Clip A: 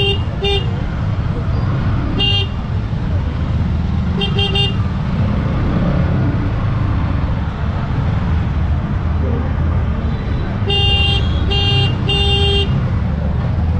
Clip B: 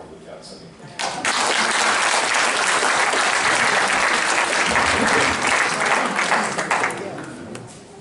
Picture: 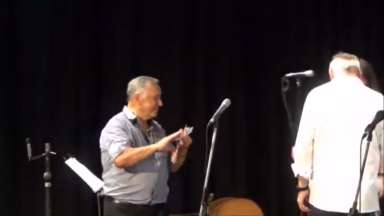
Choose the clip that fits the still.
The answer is B